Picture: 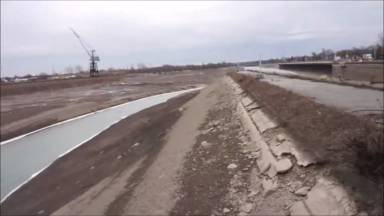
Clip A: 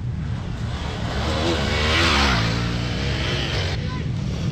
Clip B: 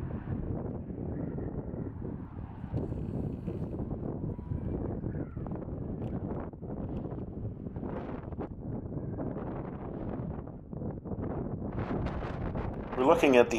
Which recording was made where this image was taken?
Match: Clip B